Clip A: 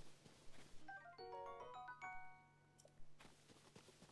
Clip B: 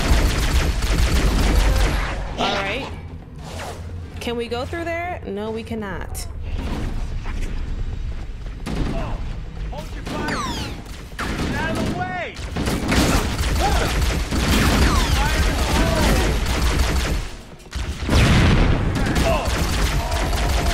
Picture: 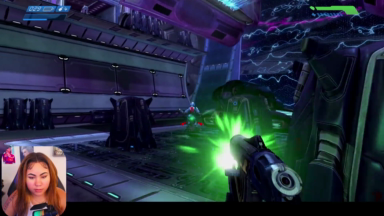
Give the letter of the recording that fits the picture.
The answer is B